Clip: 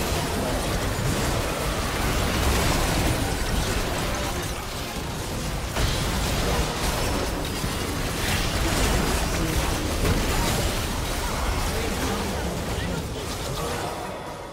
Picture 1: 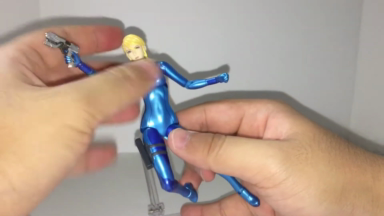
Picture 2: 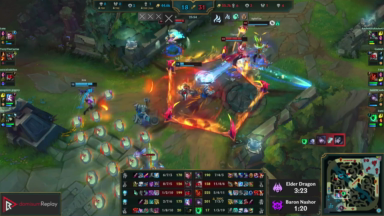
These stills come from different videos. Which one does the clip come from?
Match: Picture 2